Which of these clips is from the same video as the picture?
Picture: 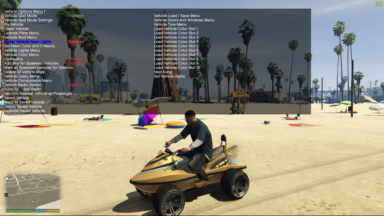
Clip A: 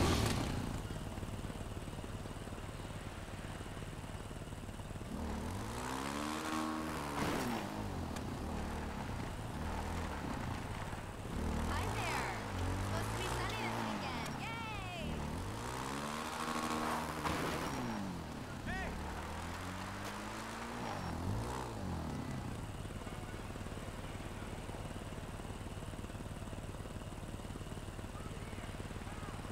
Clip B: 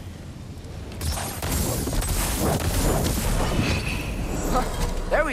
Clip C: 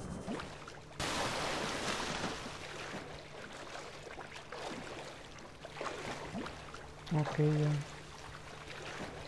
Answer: A